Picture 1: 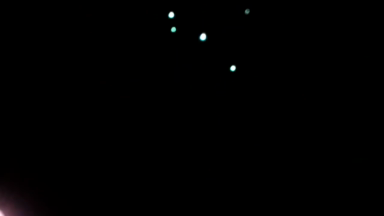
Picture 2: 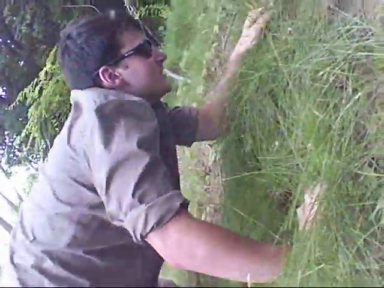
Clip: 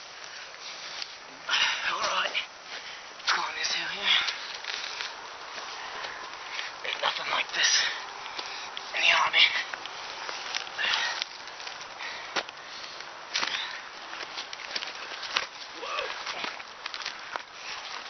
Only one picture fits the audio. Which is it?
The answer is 2